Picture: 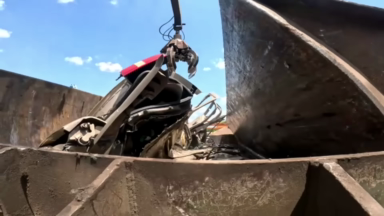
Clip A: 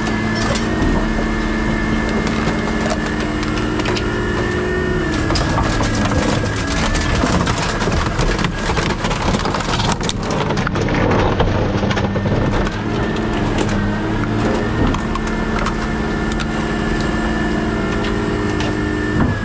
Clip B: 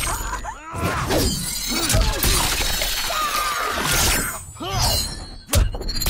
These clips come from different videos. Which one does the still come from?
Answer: A